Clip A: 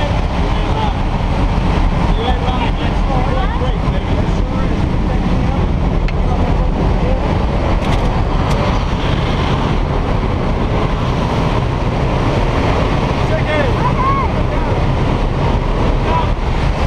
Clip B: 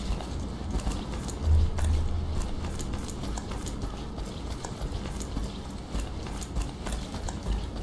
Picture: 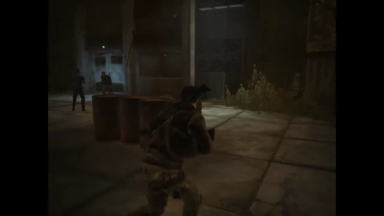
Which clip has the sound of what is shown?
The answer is B